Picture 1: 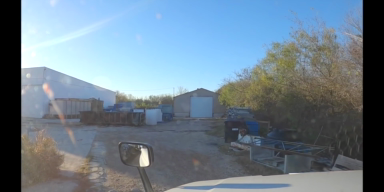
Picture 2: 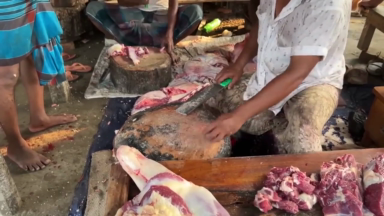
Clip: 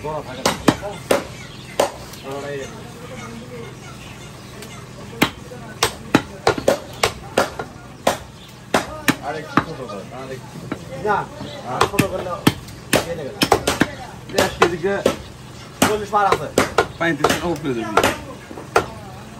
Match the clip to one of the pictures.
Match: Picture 2